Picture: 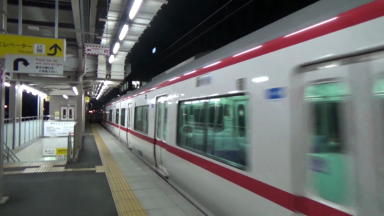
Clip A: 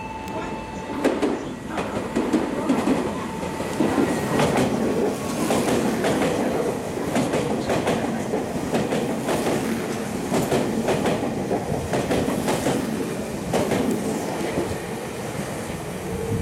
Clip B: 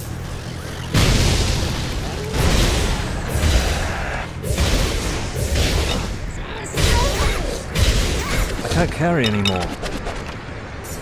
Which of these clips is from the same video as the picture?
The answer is A